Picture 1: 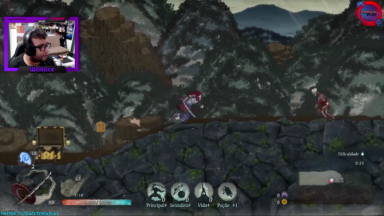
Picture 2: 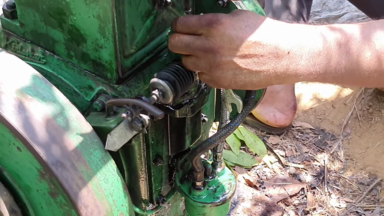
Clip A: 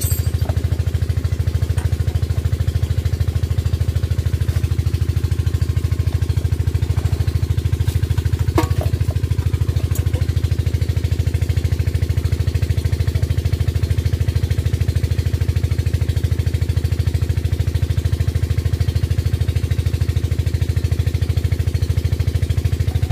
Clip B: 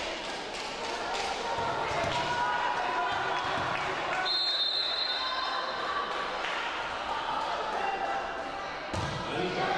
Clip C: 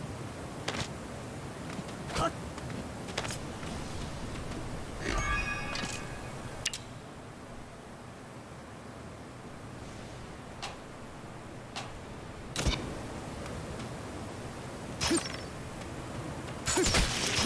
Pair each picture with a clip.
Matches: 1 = C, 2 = A